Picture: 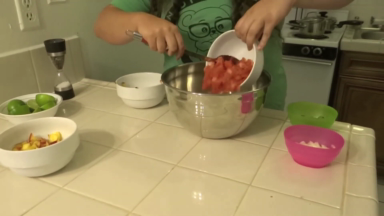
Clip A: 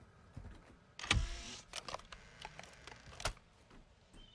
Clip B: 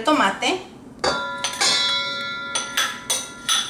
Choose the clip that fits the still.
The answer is B